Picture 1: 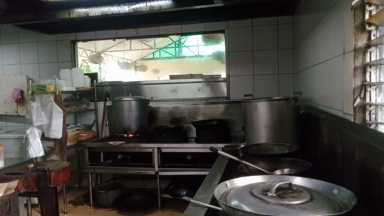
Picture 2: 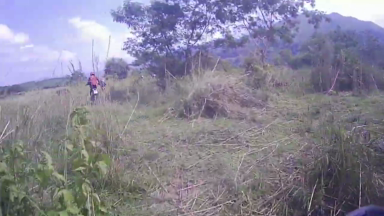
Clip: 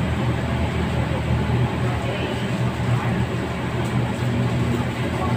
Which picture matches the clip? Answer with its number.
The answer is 1